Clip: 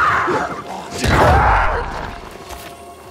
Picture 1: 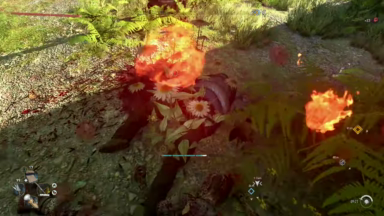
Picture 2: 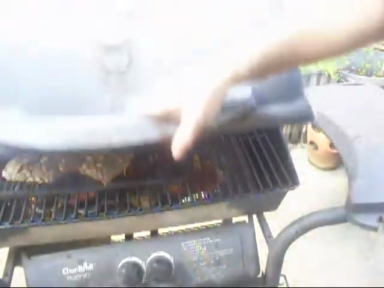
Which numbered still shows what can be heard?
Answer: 1